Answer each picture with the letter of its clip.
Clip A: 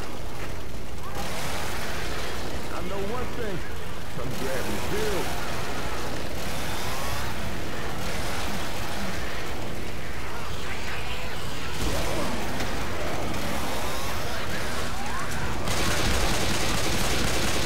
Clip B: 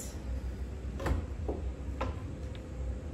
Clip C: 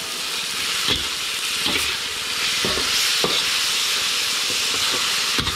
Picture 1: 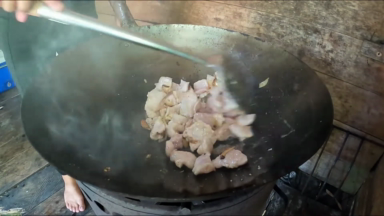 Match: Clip C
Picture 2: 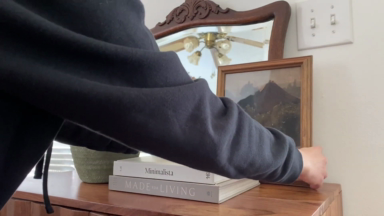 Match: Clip B